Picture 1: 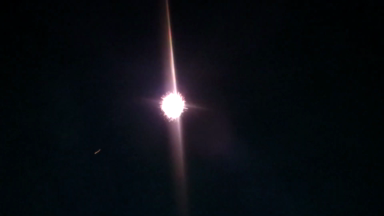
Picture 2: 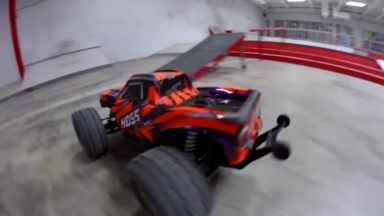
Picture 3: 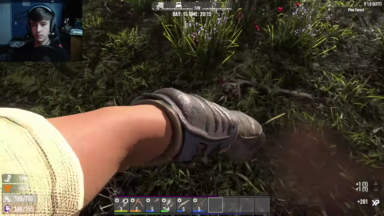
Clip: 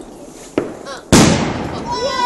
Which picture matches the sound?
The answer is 1